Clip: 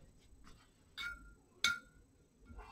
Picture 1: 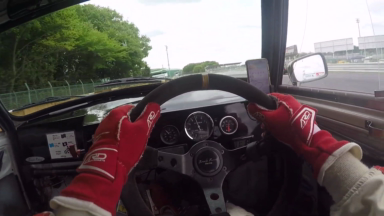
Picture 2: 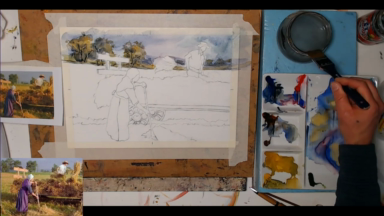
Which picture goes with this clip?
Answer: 2